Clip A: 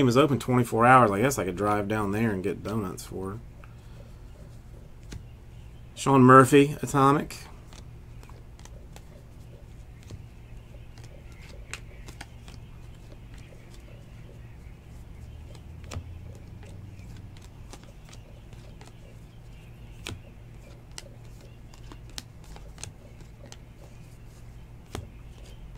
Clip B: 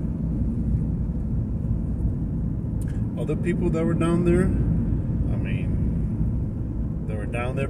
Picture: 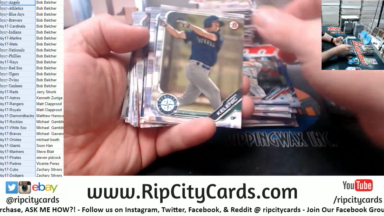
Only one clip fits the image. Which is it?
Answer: A